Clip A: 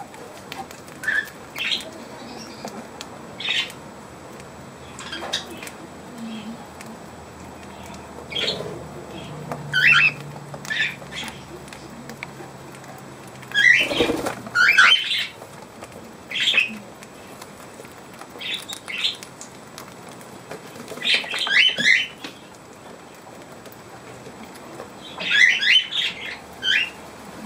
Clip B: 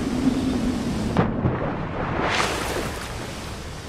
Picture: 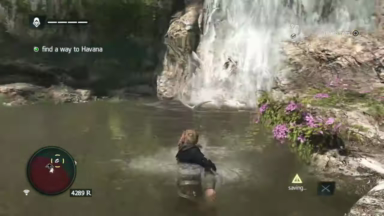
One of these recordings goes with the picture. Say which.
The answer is B